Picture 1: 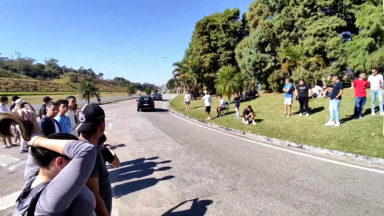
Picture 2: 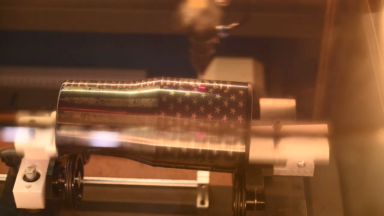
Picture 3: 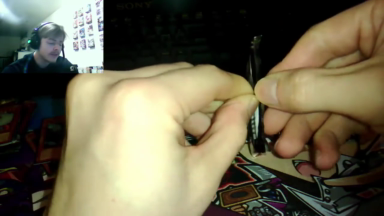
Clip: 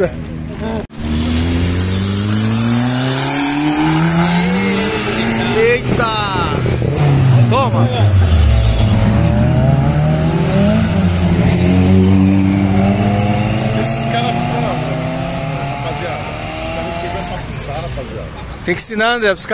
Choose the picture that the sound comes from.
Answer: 1